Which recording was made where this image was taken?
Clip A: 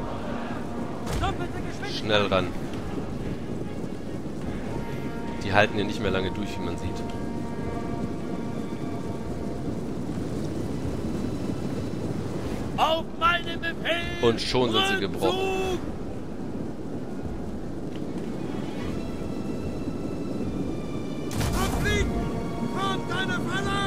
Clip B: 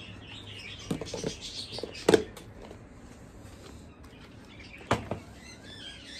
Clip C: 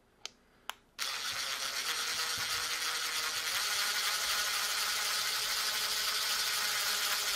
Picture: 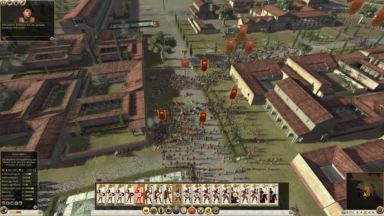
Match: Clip A